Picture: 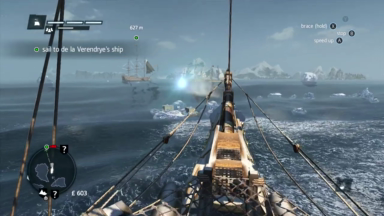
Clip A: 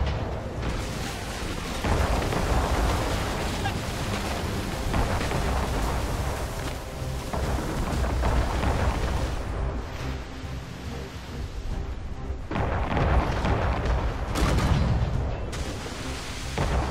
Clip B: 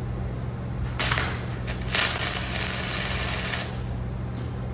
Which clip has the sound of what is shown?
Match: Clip A